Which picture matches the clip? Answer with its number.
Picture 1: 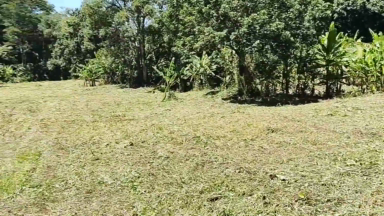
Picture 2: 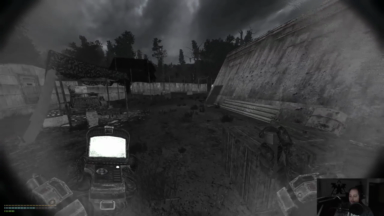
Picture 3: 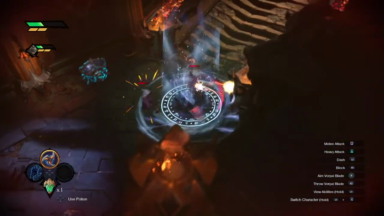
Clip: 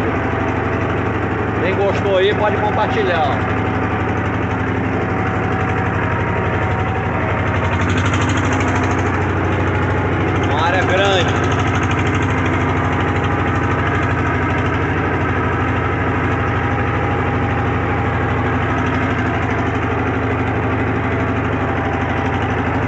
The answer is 1